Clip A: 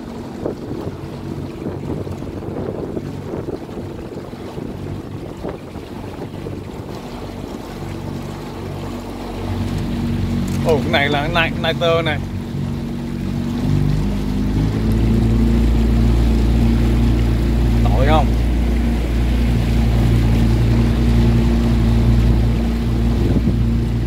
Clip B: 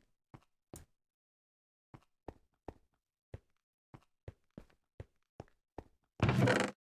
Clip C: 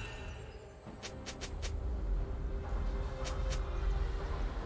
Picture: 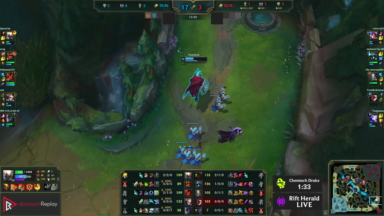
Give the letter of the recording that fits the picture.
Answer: C